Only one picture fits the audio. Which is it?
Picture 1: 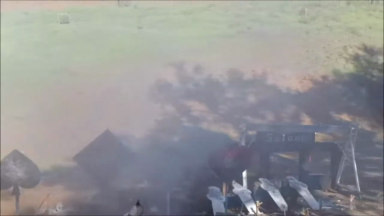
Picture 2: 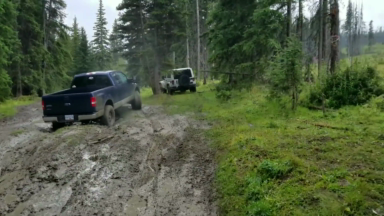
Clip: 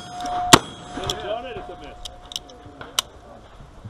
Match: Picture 1